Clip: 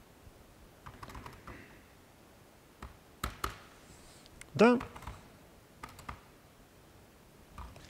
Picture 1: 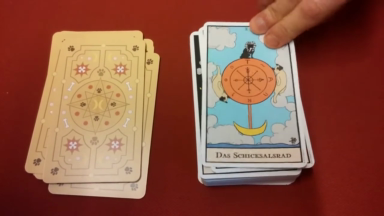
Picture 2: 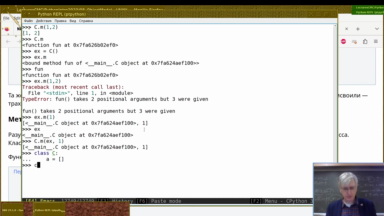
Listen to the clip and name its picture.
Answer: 2